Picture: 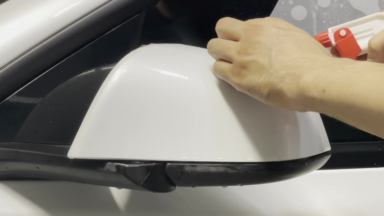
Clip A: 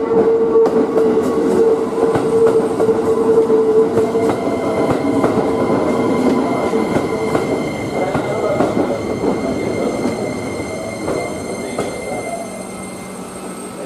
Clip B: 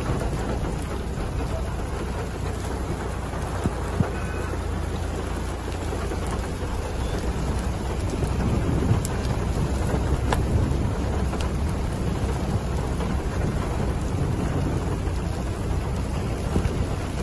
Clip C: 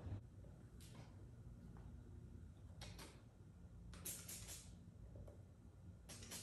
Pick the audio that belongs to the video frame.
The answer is C